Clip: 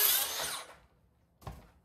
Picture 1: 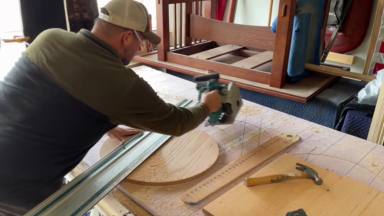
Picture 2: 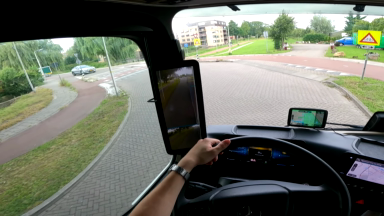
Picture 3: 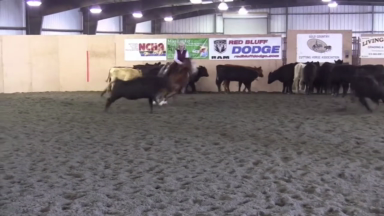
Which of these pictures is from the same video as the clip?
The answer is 1